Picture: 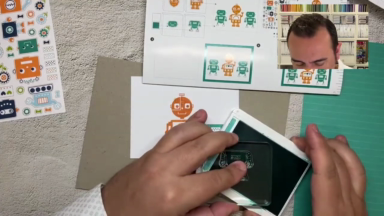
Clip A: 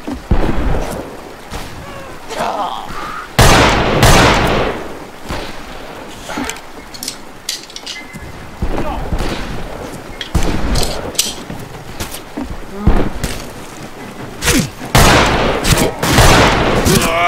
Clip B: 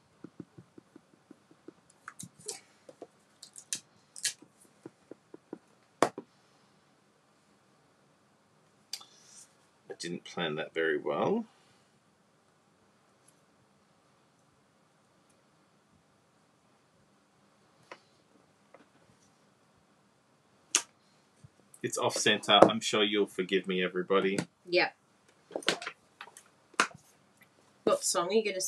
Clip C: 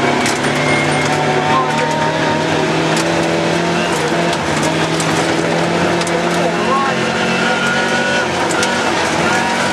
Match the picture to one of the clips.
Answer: B